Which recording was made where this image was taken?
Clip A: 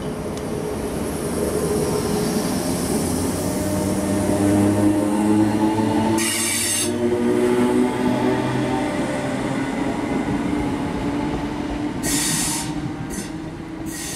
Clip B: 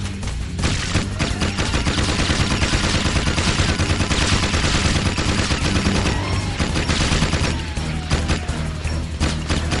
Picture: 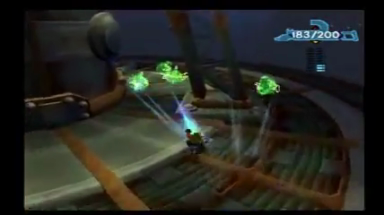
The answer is B